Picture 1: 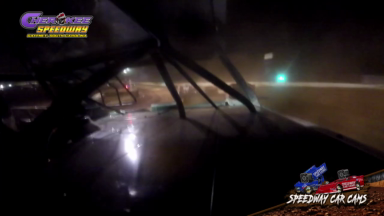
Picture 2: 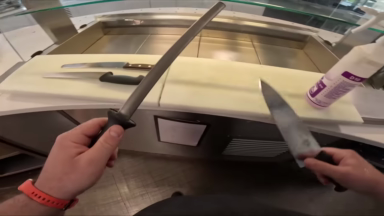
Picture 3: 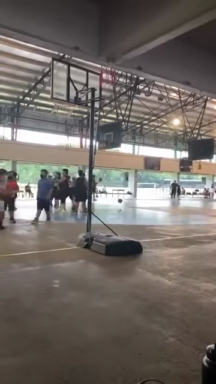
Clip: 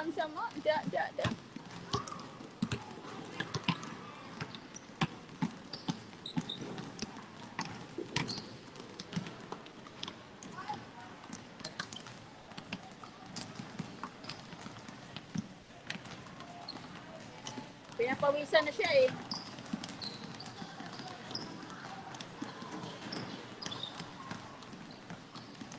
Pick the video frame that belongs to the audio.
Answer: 3